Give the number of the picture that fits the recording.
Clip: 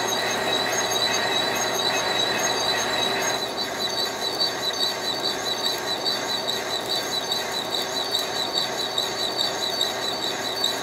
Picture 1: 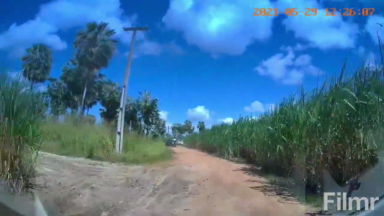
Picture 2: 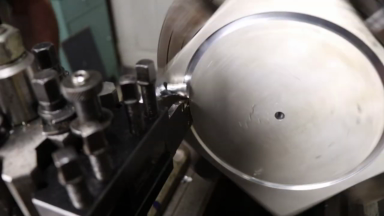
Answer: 2